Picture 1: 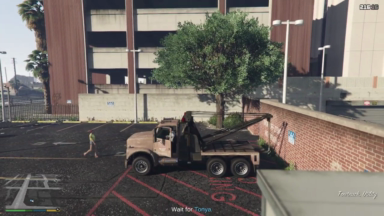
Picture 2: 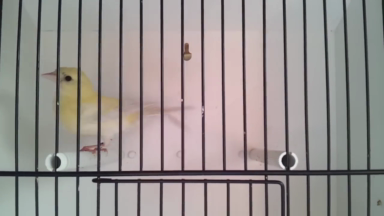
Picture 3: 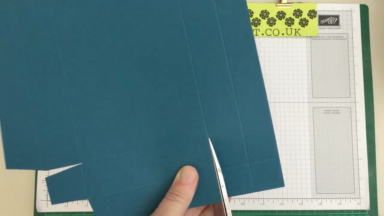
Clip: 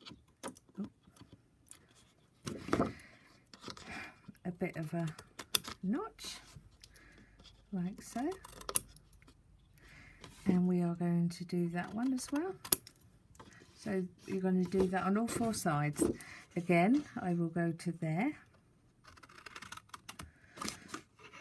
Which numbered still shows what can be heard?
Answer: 3